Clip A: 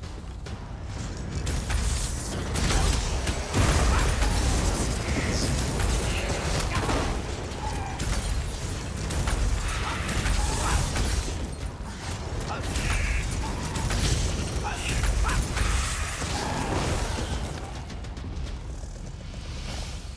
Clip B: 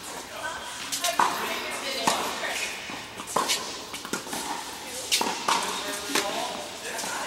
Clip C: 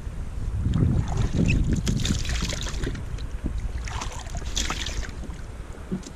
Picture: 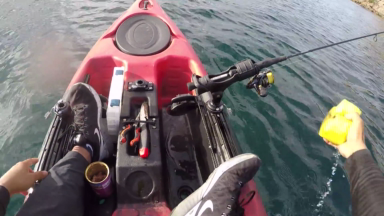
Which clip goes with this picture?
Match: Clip C